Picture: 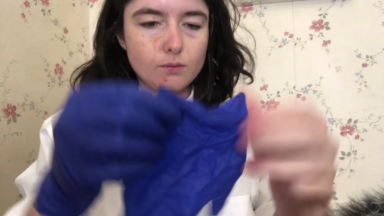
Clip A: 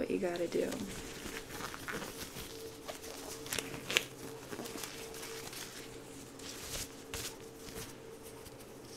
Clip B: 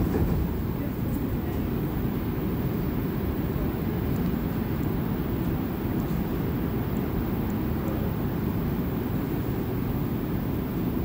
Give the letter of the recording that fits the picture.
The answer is A